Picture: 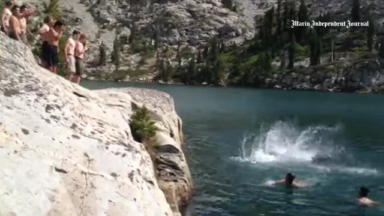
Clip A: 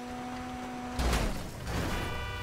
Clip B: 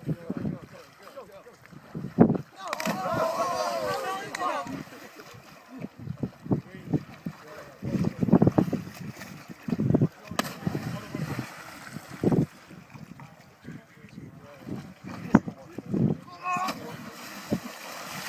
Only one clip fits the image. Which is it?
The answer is B